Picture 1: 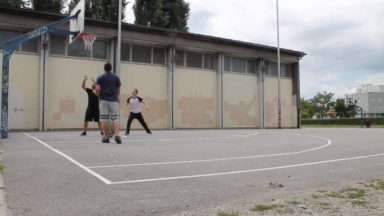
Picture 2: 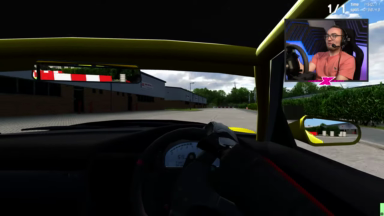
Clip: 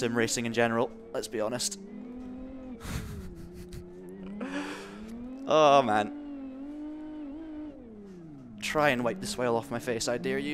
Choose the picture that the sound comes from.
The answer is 2